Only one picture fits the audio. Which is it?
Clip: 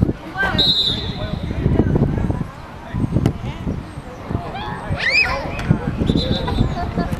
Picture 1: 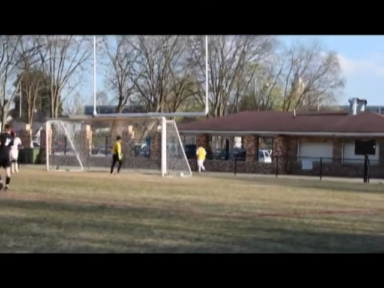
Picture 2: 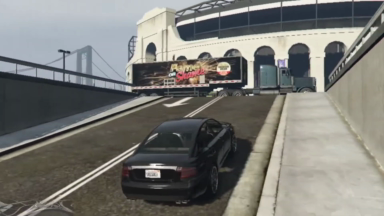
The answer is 1